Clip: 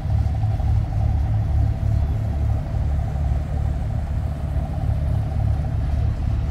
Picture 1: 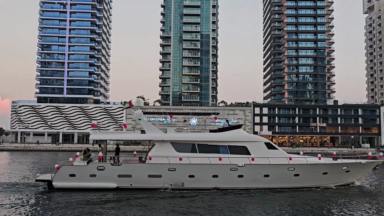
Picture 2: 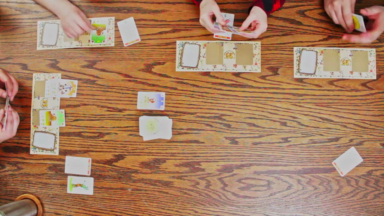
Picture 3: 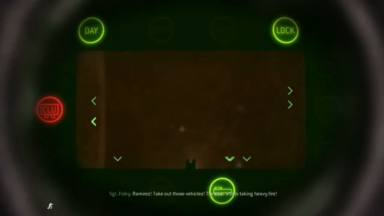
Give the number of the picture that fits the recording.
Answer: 1